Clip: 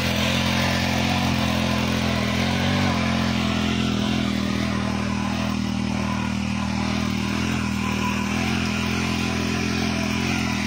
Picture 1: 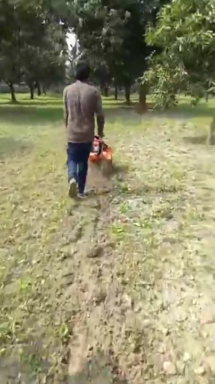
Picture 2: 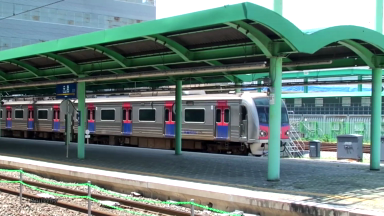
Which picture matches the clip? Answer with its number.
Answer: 1